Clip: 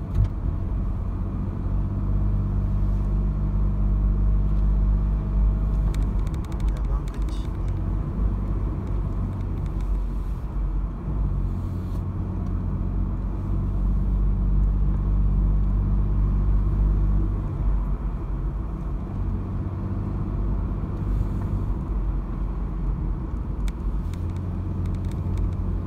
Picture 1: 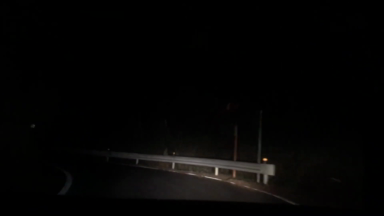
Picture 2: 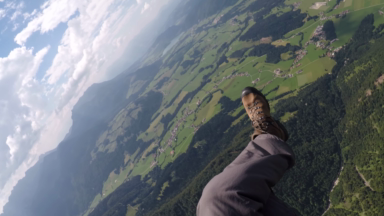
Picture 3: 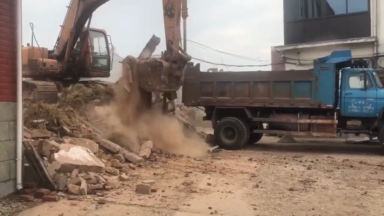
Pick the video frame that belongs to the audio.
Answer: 1